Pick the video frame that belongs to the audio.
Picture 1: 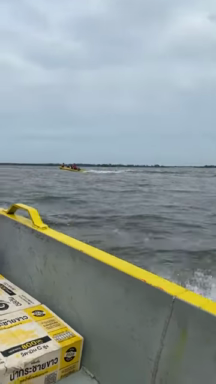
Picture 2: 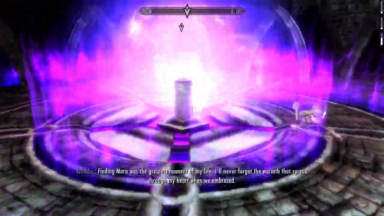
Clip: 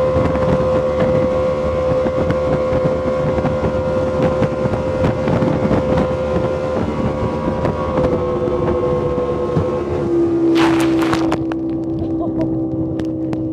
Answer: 1